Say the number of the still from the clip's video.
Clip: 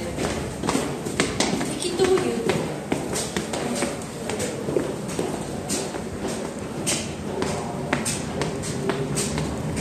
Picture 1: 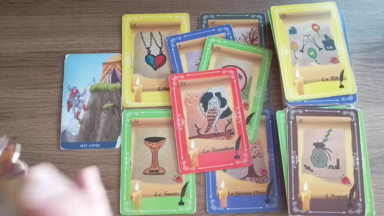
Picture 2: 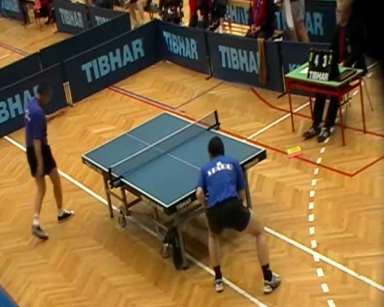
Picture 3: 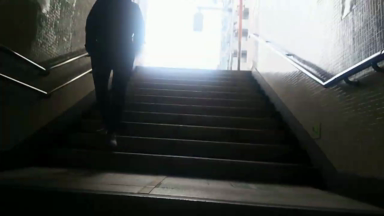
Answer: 3